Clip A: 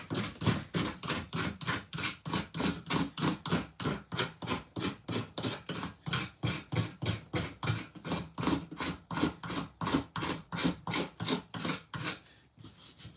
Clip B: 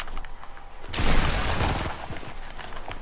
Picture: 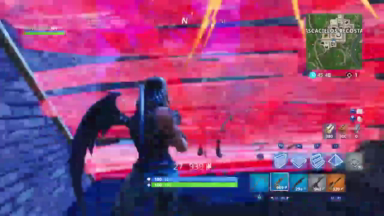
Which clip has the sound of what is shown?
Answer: B